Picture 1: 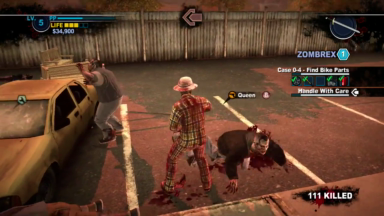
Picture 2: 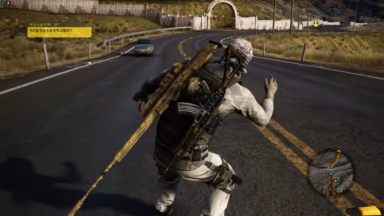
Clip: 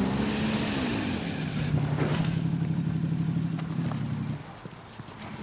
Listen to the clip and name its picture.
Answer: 2